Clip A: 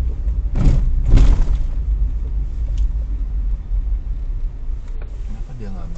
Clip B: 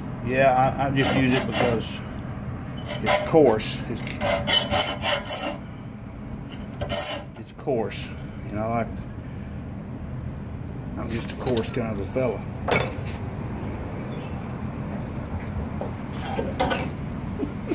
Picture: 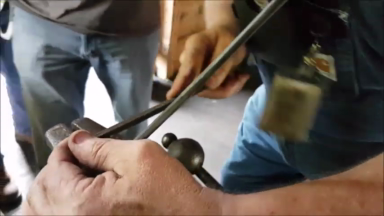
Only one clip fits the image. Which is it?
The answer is B